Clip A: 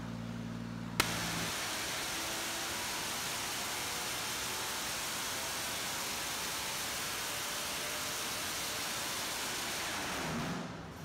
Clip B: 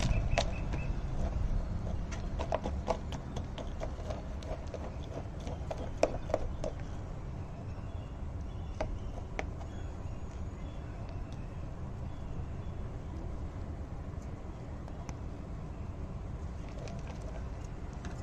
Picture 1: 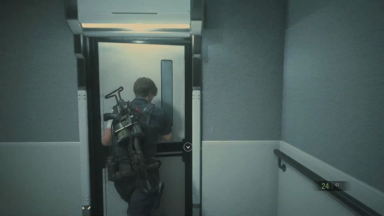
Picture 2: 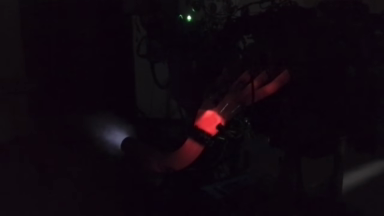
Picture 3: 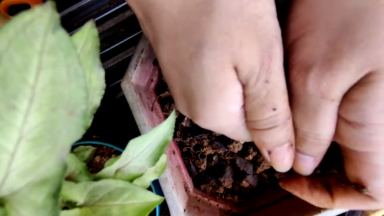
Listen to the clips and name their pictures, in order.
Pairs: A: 2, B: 3